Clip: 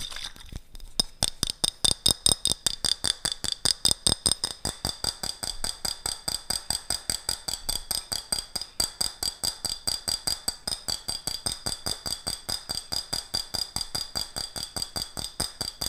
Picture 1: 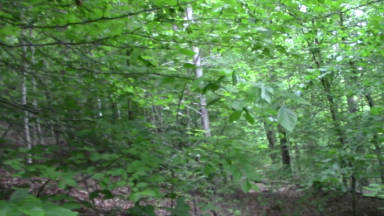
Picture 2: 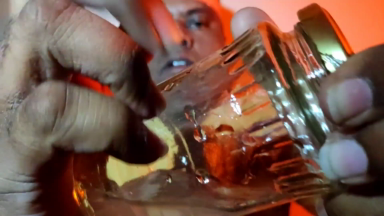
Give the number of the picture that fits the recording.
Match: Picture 2